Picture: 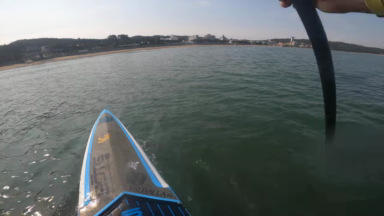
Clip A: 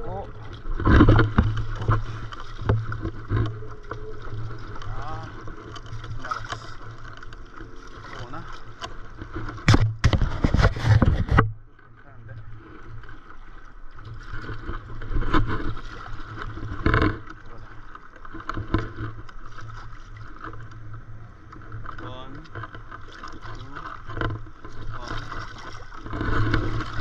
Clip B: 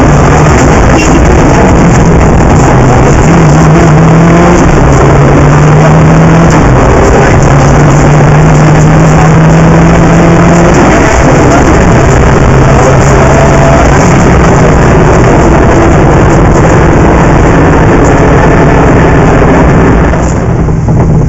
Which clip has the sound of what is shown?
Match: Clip A